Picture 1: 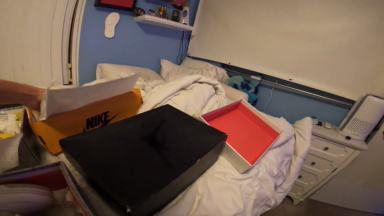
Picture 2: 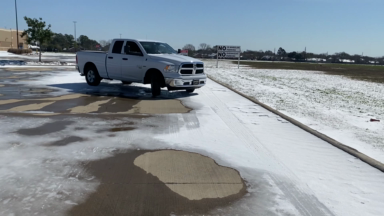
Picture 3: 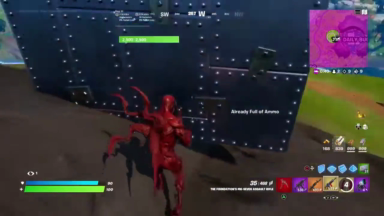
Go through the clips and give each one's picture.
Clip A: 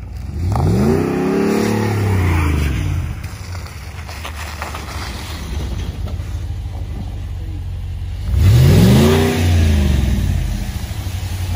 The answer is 2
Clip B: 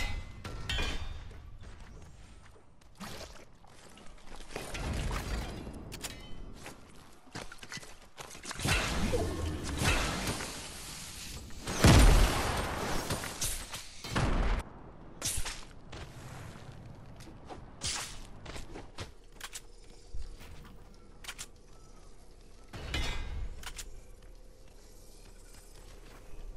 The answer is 3